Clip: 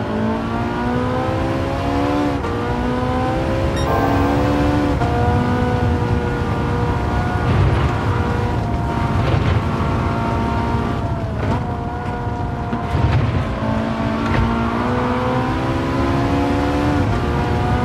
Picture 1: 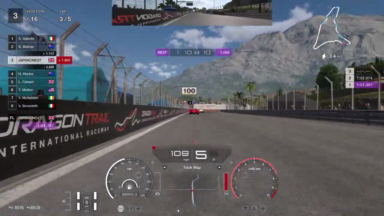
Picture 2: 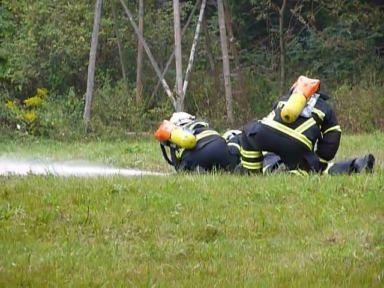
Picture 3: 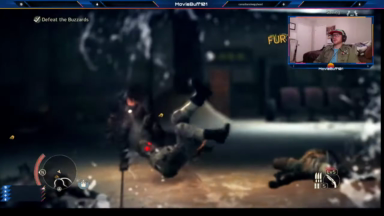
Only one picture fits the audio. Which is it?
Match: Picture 1